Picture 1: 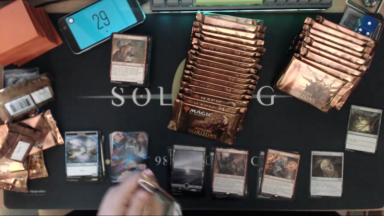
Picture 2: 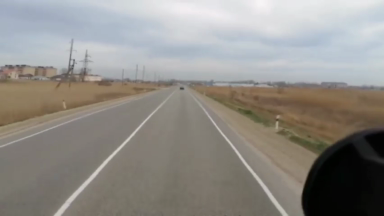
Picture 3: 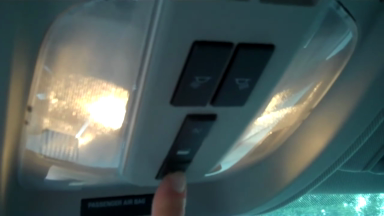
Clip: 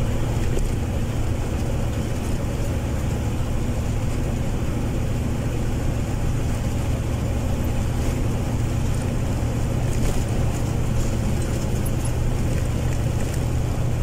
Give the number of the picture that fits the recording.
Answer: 2